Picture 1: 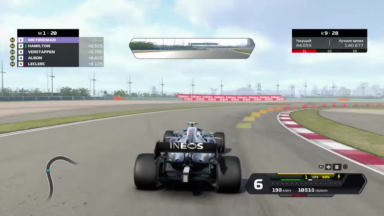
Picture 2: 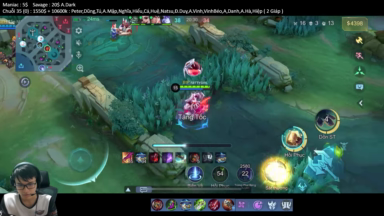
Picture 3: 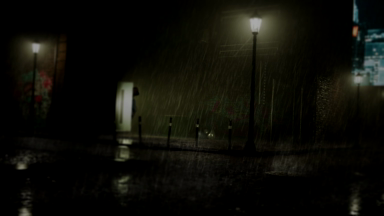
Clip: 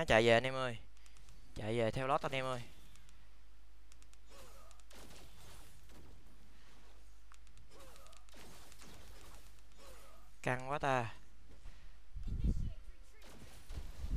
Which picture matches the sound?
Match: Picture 2